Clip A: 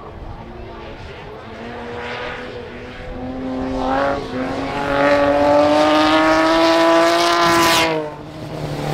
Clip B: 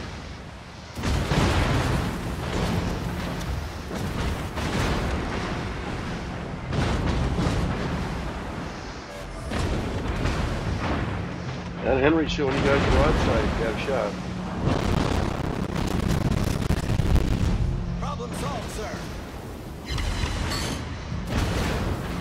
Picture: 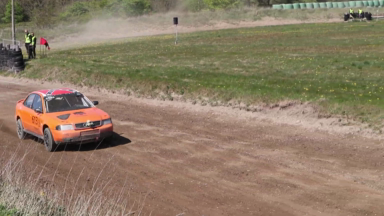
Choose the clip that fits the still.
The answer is A